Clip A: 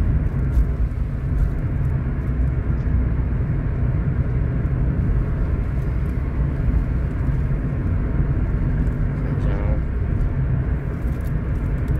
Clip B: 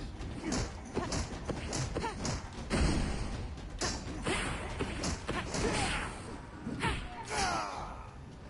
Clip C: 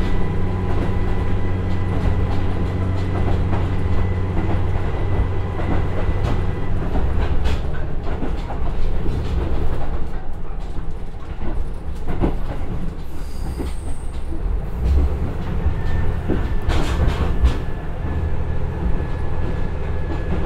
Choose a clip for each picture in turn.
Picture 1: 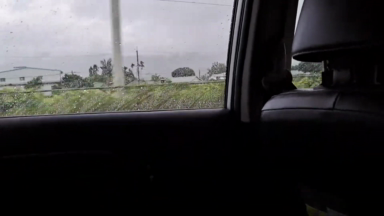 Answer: A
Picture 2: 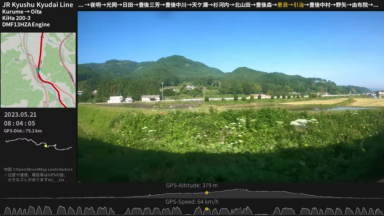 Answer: C